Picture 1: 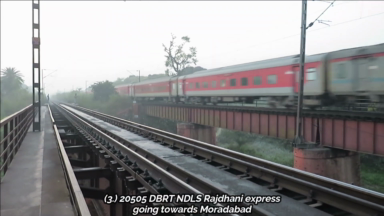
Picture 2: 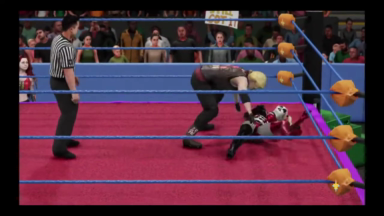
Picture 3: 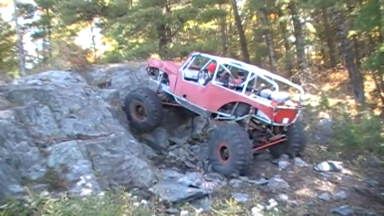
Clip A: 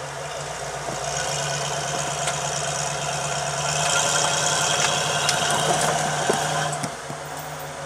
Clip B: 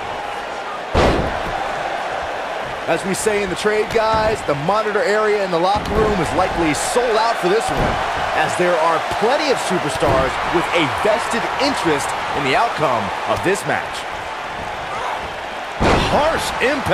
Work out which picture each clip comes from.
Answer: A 3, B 2